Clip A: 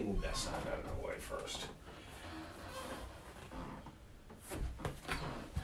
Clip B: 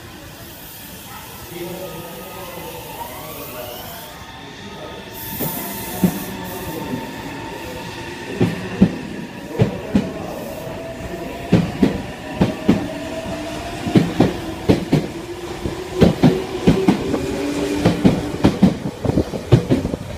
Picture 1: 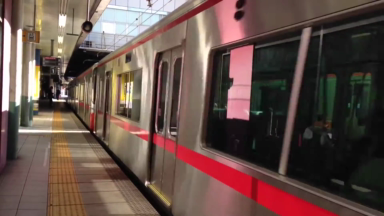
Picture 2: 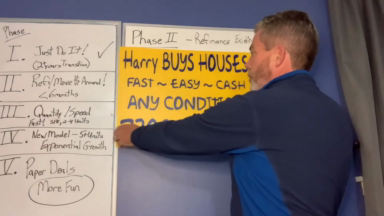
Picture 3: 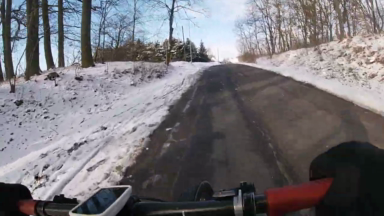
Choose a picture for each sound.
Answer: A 2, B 1